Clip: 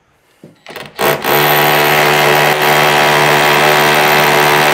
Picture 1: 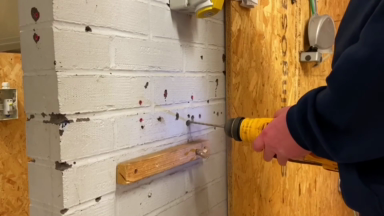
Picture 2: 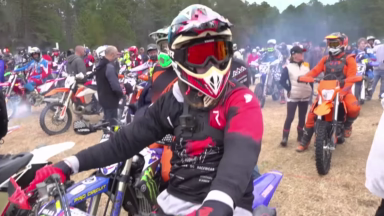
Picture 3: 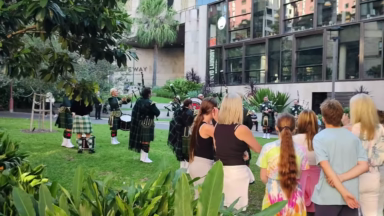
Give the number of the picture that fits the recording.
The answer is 1